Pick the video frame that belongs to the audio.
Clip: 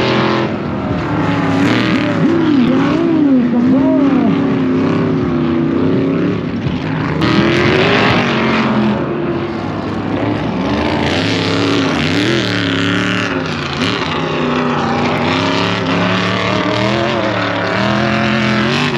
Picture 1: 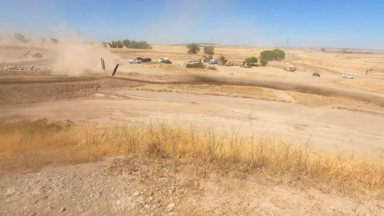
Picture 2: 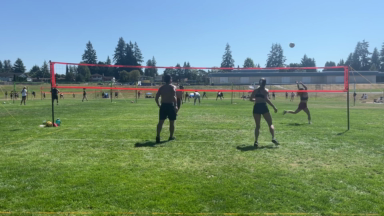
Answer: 1